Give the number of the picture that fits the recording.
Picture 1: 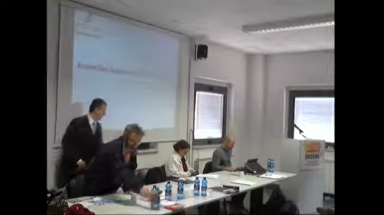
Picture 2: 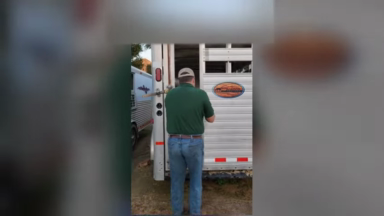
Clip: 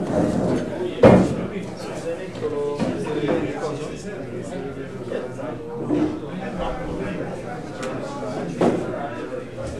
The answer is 1